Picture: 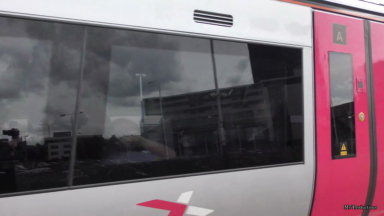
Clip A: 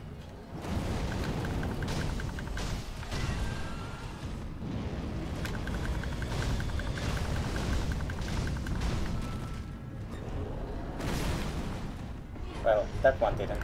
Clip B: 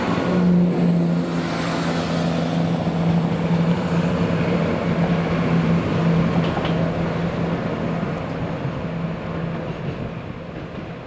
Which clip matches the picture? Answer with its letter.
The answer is B